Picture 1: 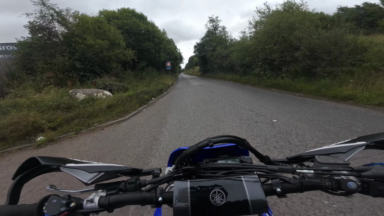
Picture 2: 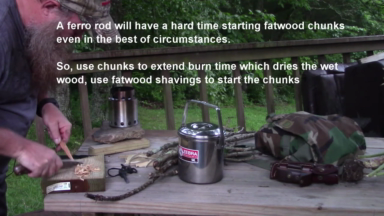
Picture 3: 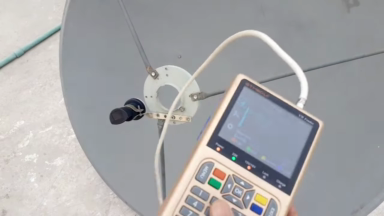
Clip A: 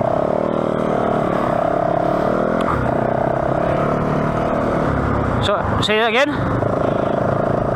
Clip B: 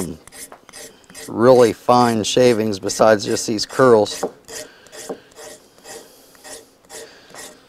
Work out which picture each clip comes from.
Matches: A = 1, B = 2